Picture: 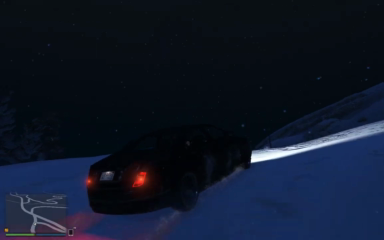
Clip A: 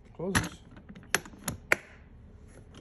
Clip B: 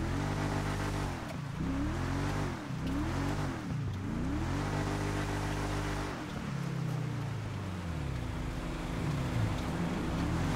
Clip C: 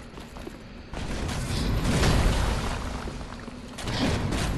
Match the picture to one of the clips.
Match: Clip B